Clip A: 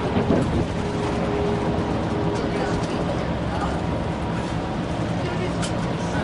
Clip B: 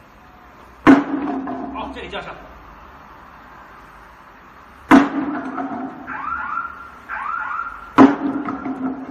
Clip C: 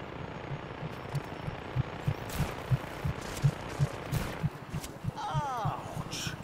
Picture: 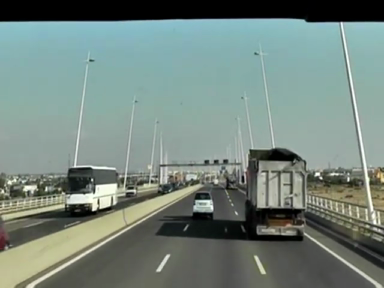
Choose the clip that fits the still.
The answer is A